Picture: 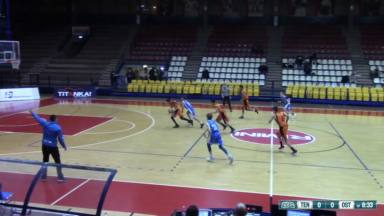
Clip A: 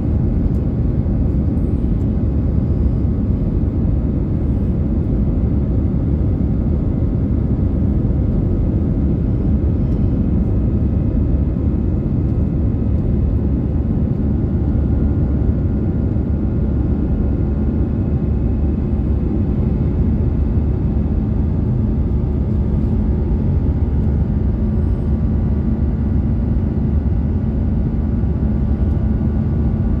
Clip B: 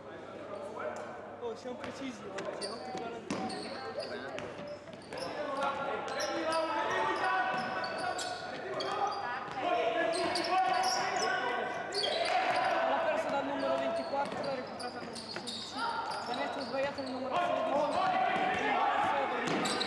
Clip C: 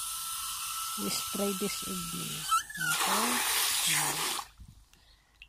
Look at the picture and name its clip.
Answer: B